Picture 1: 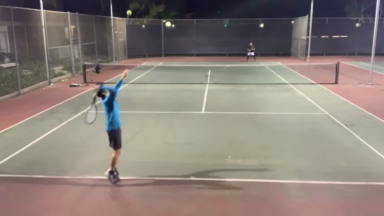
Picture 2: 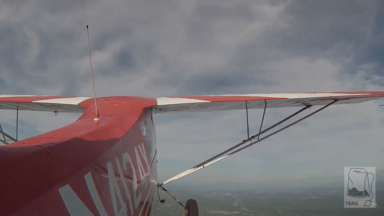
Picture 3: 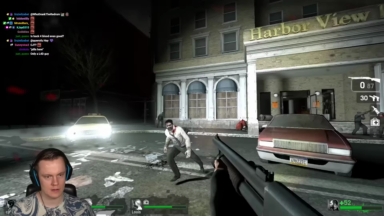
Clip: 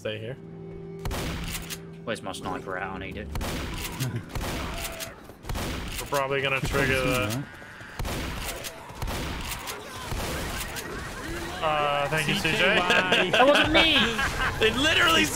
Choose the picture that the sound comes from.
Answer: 3